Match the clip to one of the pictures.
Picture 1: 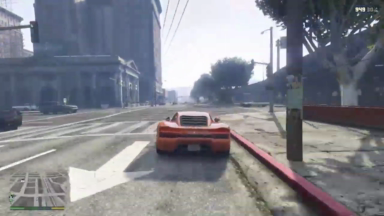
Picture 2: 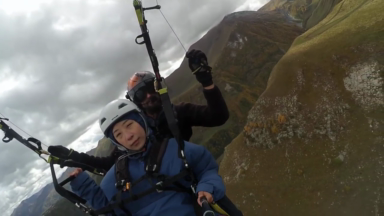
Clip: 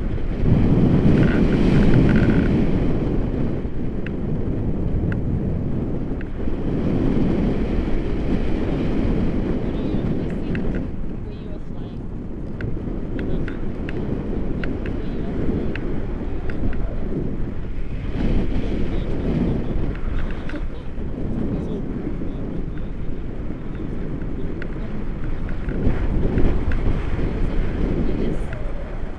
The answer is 2